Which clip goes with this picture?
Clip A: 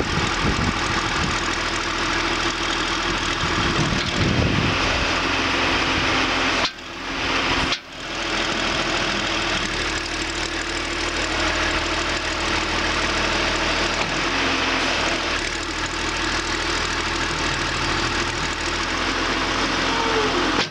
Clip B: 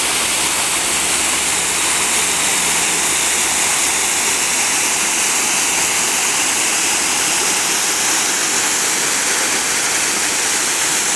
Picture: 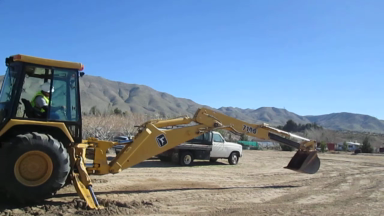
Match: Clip A